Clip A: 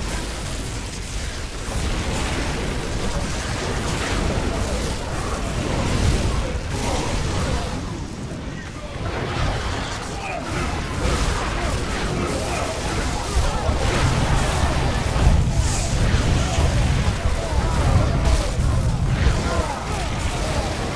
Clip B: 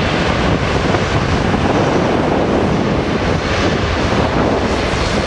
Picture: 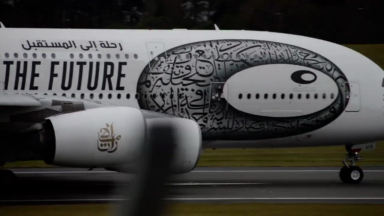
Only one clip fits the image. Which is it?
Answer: B